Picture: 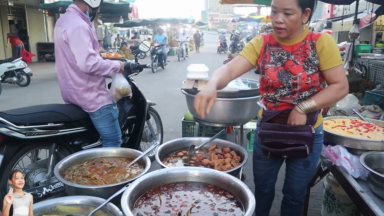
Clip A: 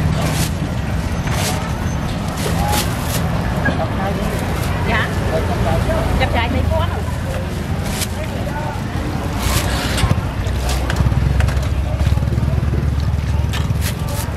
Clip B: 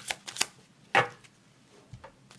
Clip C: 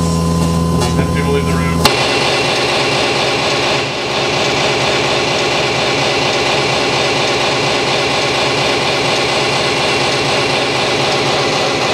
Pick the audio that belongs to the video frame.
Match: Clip A